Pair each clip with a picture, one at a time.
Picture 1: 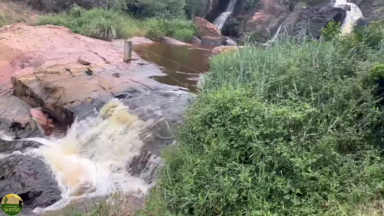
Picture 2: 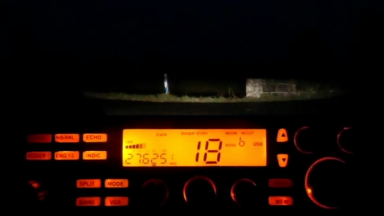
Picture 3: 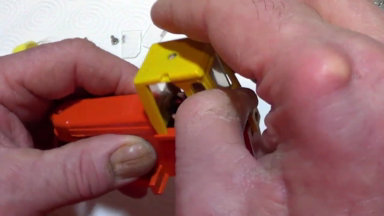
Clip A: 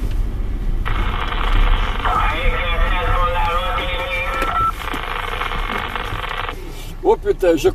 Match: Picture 2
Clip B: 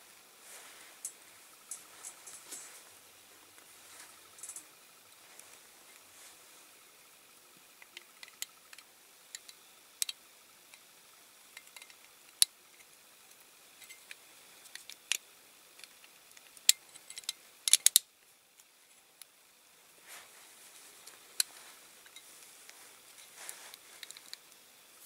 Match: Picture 3